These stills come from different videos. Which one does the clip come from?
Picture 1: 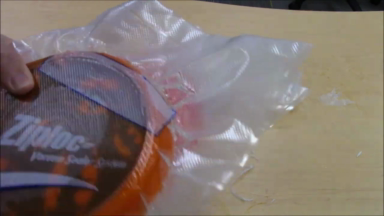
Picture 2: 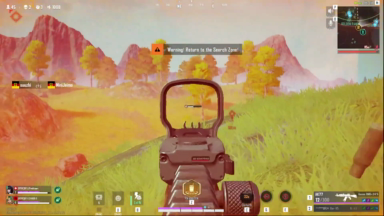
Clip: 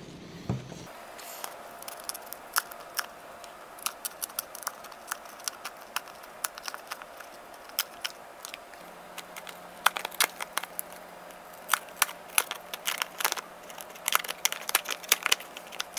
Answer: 1